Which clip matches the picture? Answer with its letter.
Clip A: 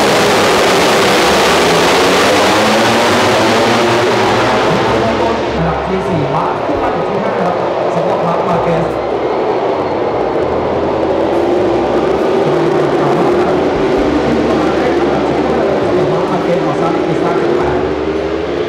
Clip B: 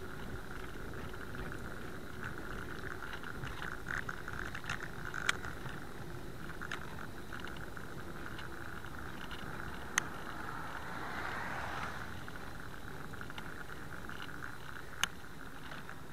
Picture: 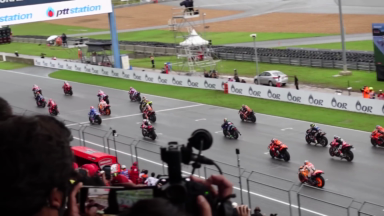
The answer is A